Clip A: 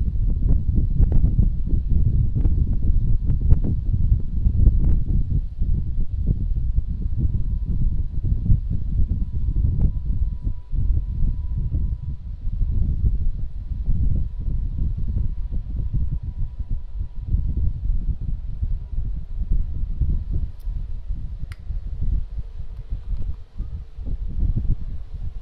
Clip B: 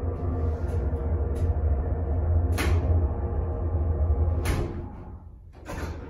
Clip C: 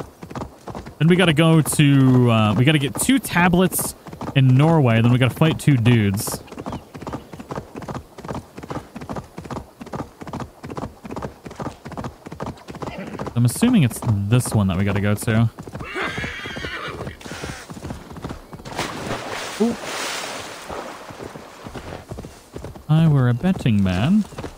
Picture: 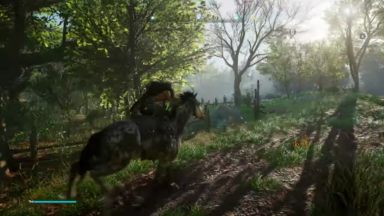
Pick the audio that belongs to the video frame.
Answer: C